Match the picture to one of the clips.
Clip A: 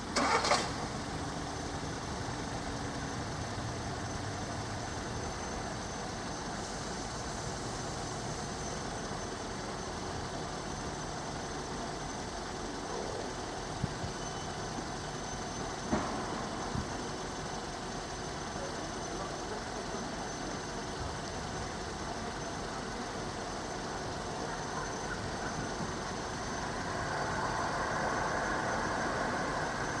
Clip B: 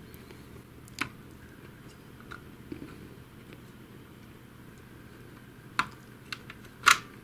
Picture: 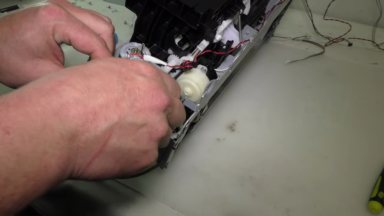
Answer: B